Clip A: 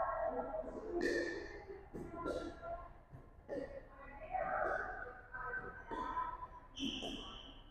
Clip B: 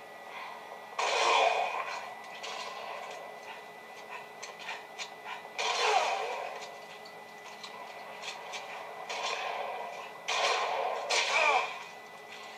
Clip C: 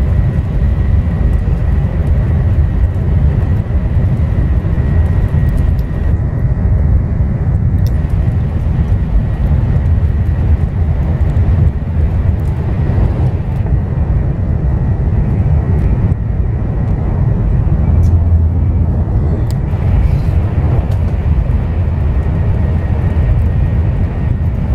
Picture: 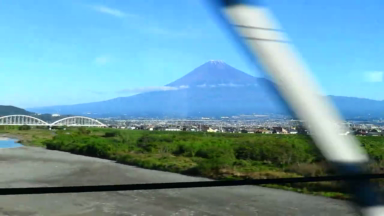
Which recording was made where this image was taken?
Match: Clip C